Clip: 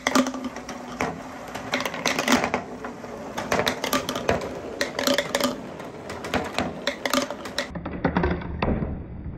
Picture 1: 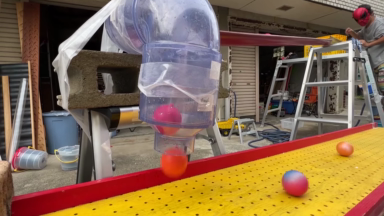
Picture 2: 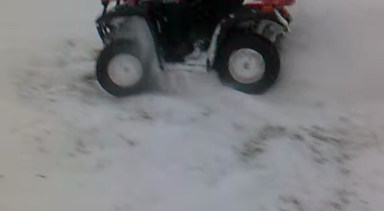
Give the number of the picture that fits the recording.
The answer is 1